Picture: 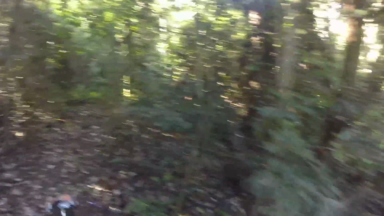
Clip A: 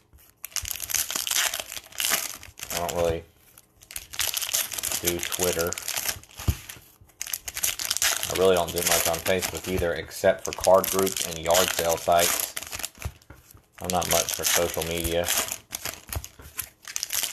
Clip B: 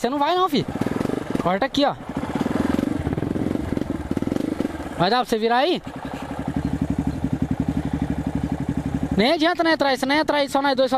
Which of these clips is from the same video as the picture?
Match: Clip B